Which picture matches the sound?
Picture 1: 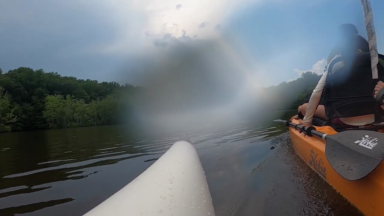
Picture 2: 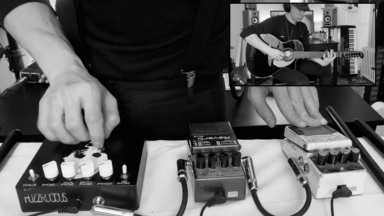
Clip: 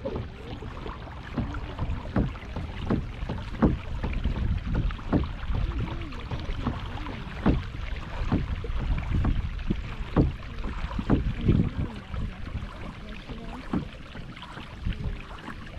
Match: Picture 1